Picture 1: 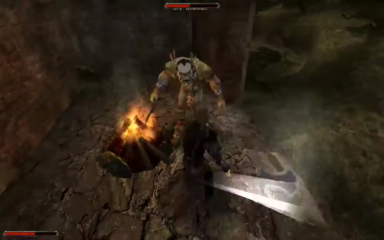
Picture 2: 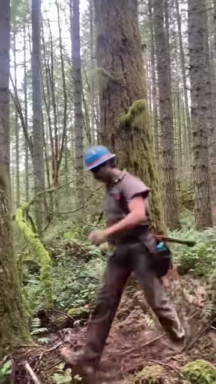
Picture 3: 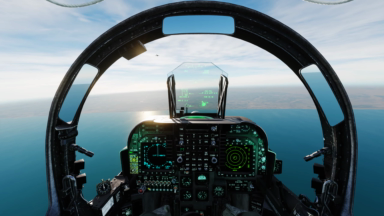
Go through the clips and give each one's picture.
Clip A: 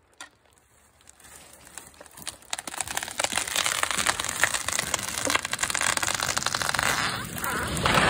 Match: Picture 2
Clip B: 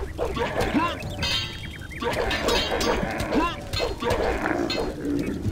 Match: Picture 1